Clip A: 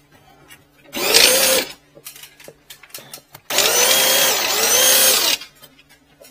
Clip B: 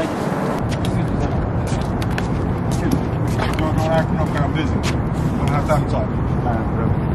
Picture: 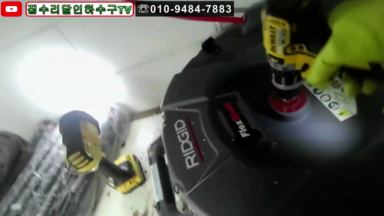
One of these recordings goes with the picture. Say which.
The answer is A